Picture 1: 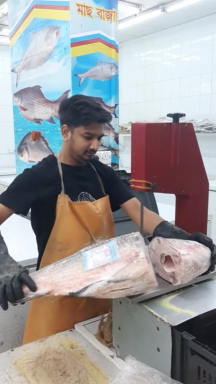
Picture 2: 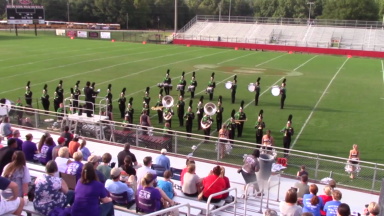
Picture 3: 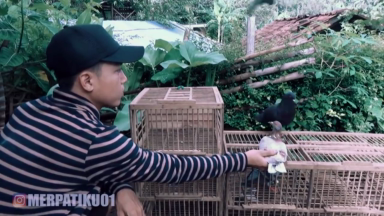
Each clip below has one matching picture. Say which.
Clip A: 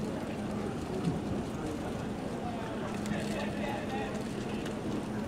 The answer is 2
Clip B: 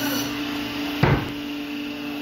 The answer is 1